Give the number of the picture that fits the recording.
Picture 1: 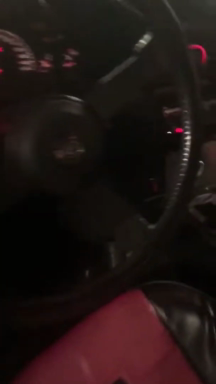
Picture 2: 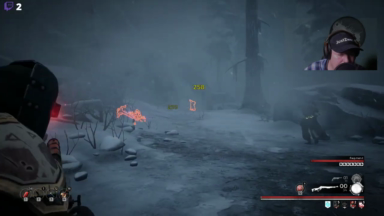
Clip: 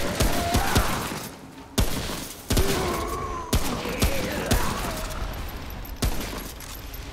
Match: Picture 2